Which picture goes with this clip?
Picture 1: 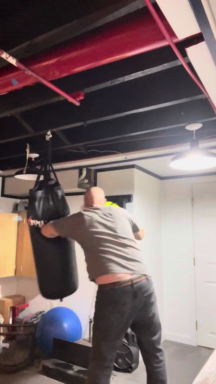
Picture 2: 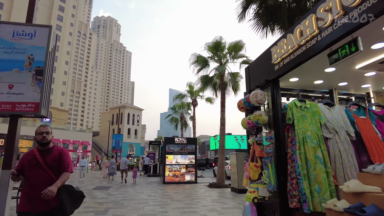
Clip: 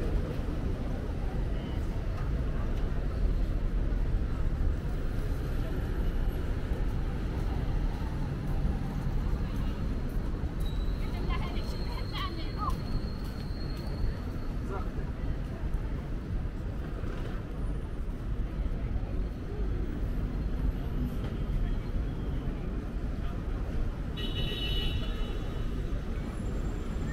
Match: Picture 2